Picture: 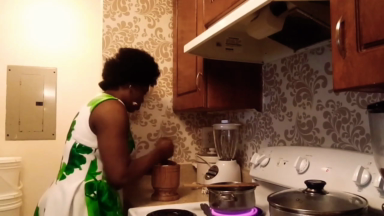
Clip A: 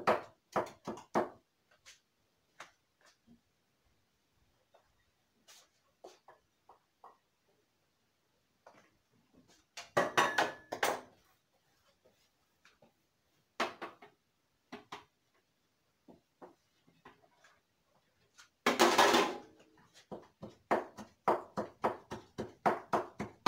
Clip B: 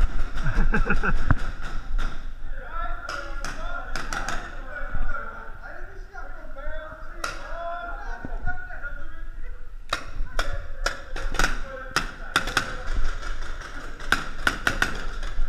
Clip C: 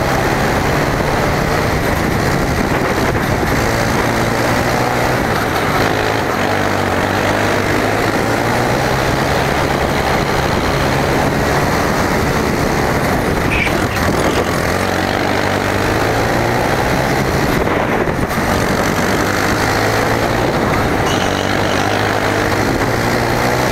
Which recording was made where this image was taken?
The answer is A